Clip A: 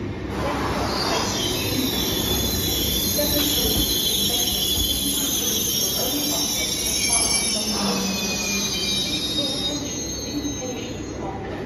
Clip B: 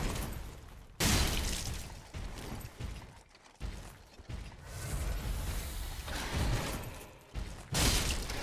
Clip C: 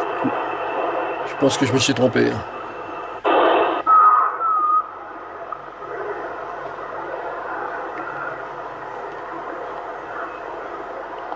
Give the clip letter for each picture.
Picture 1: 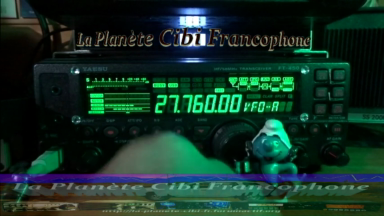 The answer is C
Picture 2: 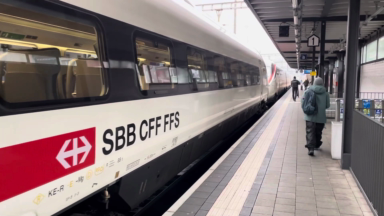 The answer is A